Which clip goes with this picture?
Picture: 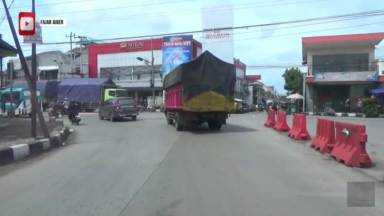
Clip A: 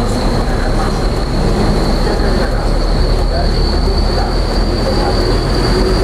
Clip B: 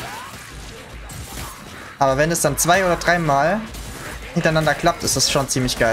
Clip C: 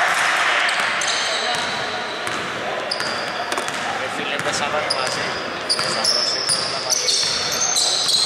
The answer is A